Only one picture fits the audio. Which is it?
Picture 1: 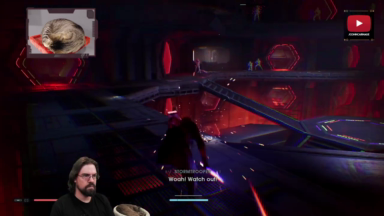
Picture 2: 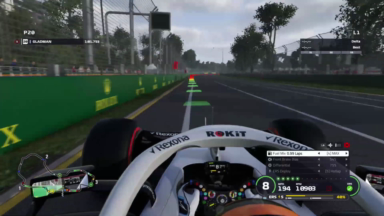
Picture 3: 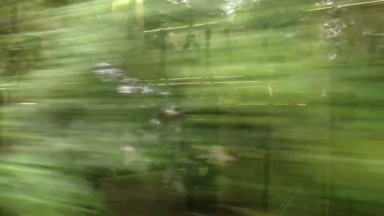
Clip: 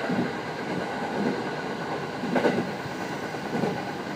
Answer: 3